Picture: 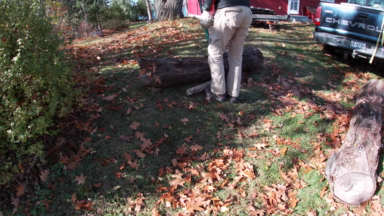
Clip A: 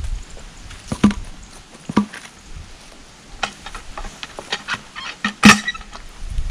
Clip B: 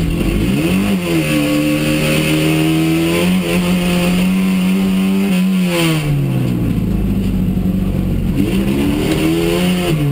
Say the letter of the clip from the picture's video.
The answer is A